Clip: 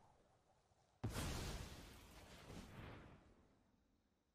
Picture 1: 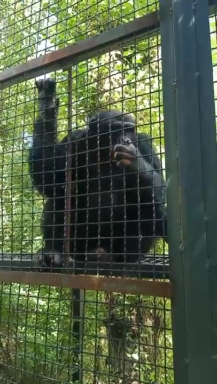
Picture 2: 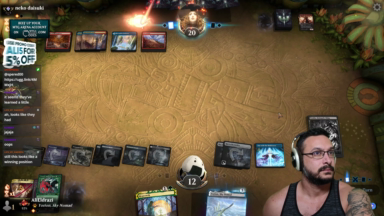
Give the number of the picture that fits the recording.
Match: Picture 2